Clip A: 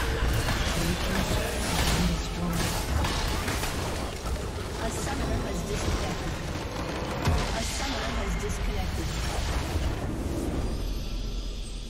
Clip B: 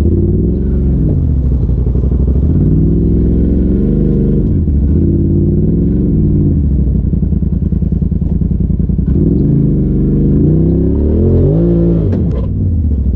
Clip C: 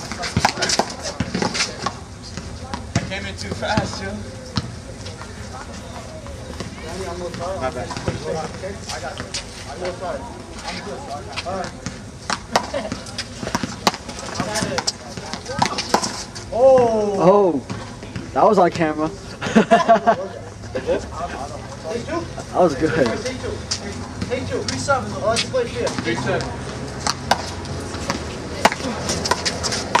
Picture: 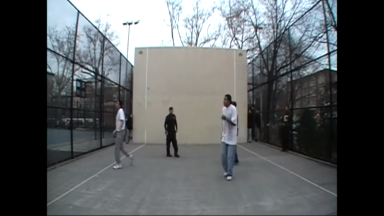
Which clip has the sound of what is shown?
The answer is C